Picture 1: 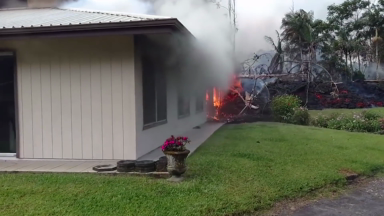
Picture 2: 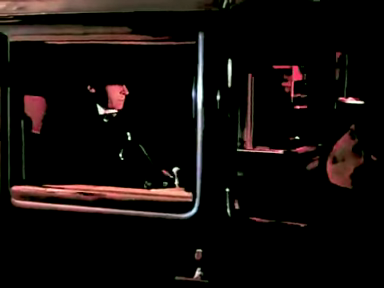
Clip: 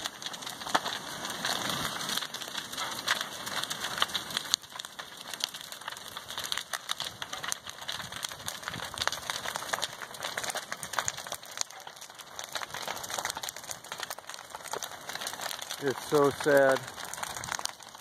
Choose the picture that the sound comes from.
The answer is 1